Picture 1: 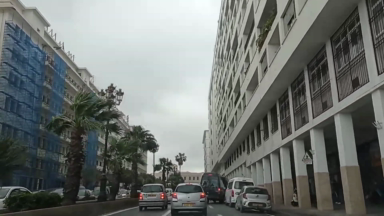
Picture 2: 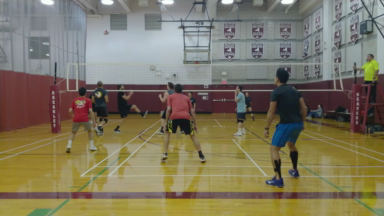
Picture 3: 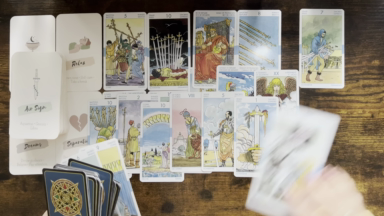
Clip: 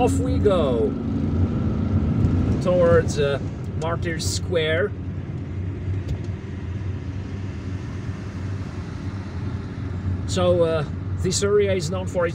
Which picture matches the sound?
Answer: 1